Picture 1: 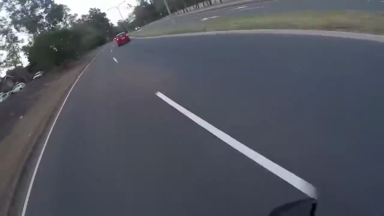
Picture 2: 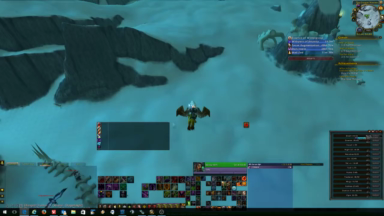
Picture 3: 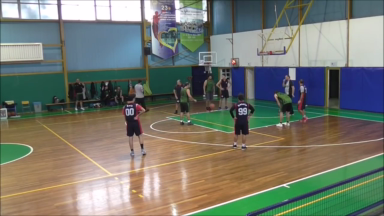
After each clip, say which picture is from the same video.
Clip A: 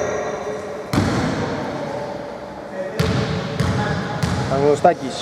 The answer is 3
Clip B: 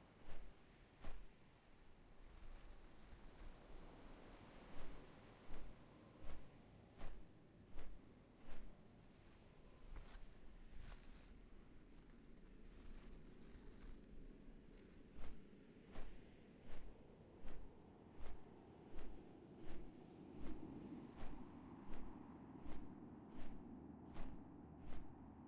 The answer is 2